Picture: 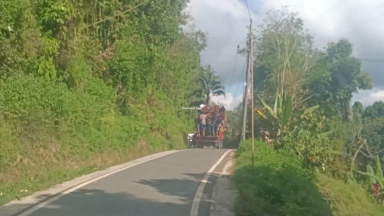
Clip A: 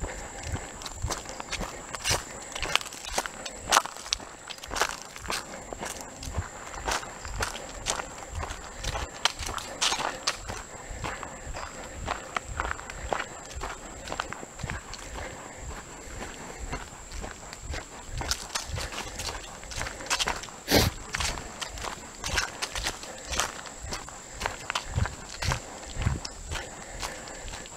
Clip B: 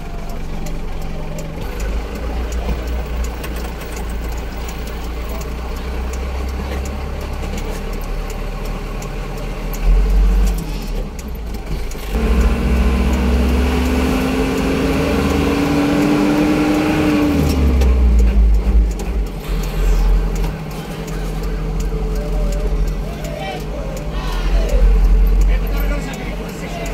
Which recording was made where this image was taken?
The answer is B